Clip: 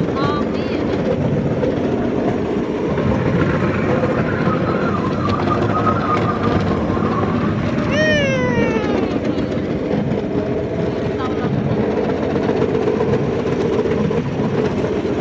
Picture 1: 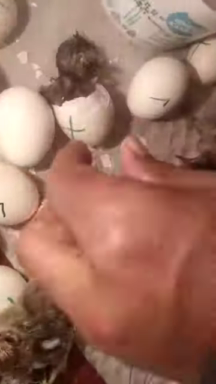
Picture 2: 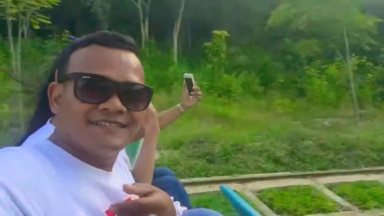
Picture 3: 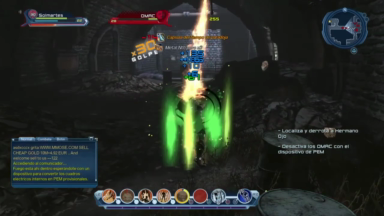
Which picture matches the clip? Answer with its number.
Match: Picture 2